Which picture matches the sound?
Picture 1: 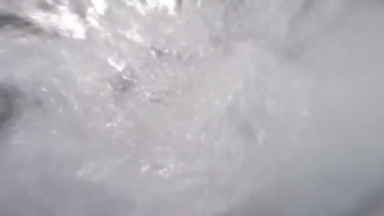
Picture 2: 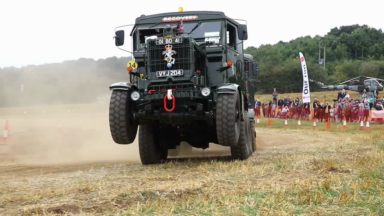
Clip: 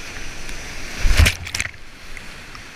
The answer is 1